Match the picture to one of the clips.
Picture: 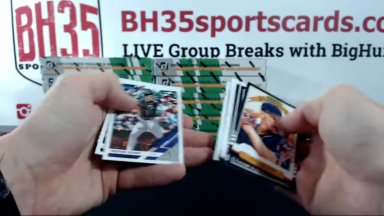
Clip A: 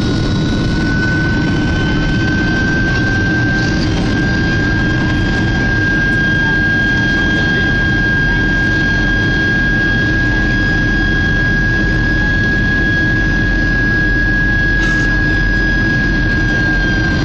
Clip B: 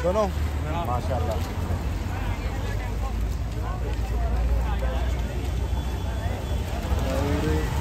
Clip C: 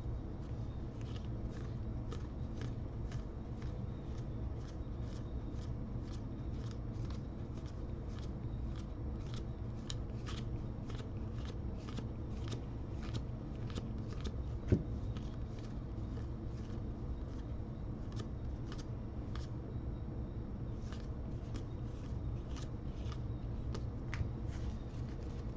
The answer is C